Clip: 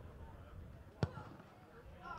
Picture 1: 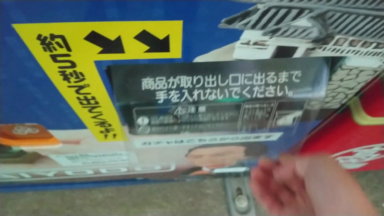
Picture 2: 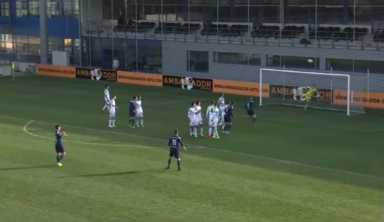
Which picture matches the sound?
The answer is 2